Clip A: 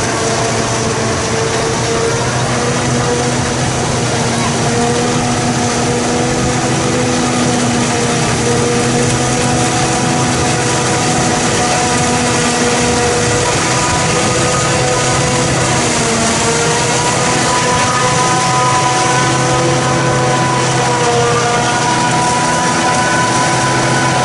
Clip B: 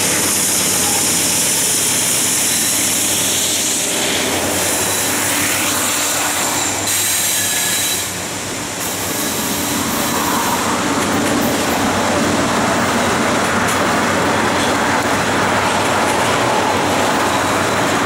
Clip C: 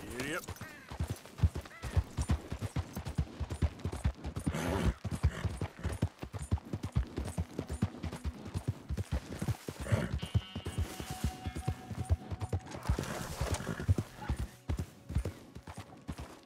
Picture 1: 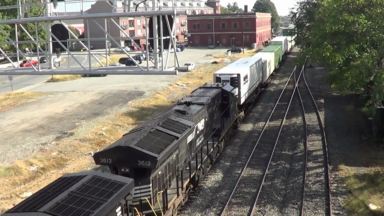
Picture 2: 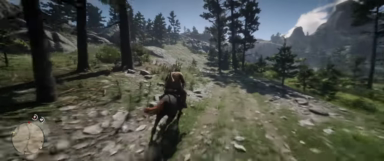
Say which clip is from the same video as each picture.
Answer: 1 B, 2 C